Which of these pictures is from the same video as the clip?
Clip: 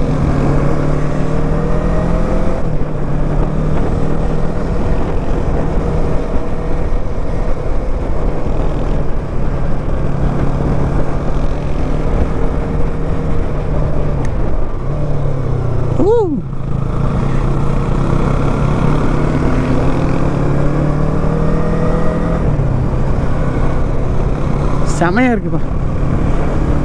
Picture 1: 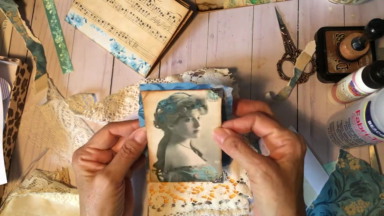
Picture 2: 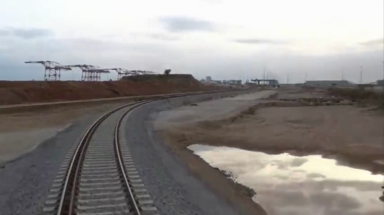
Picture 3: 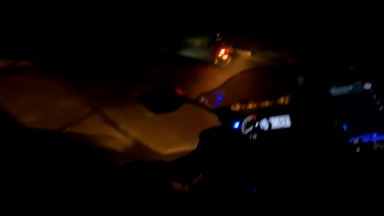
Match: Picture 3